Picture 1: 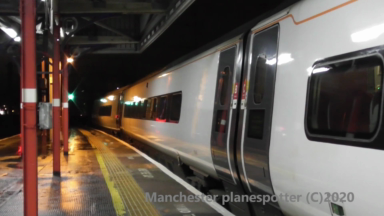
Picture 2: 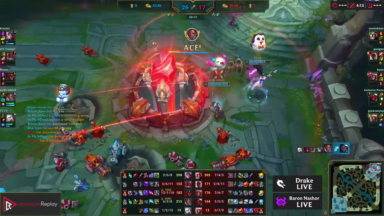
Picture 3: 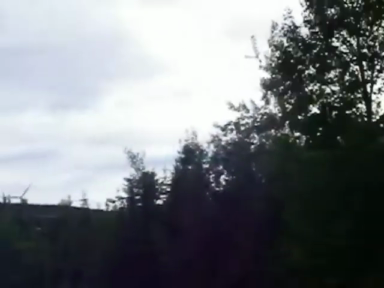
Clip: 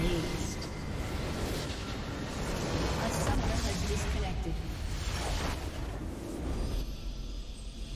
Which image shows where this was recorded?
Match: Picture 2